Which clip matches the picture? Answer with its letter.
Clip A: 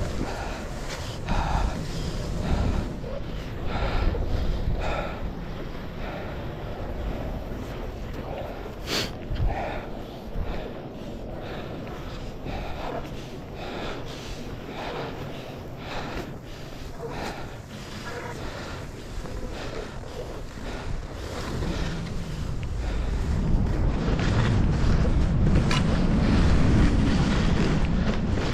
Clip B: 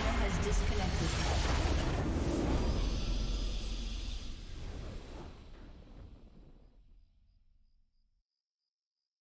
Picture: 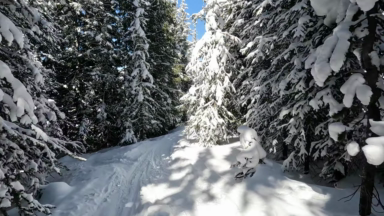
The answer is A